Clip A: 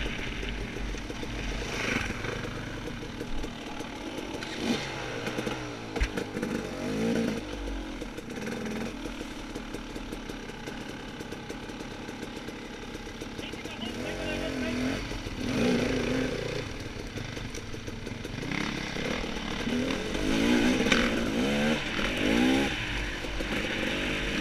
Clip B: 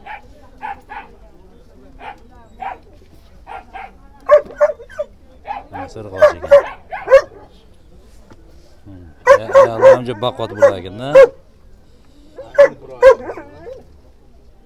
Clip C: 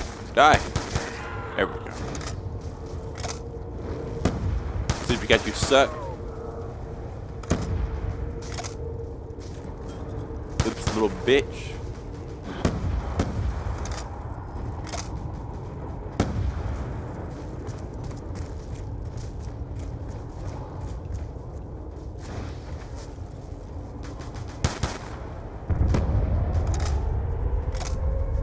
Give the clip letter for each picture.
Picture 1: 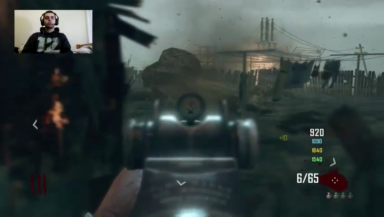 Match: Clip C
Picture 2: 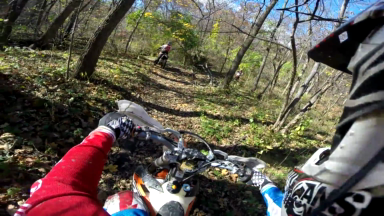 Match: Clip A